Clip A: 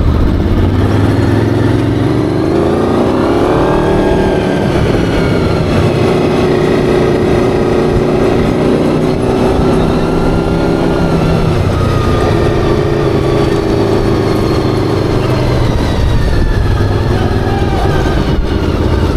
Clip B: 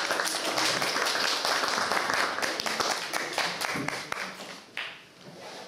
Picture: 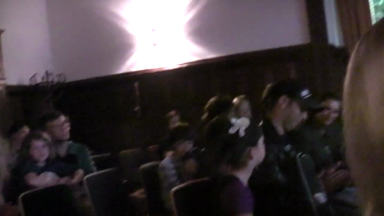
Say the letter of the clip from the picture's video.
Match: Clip B